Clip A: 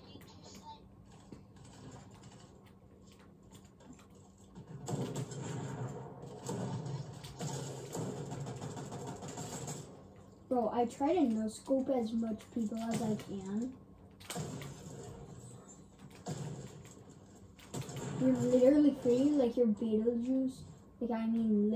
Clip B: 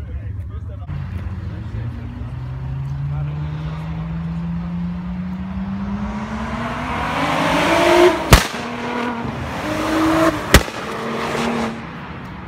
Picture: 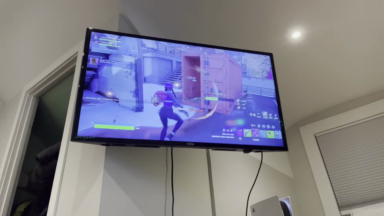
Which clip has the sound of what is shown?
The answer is A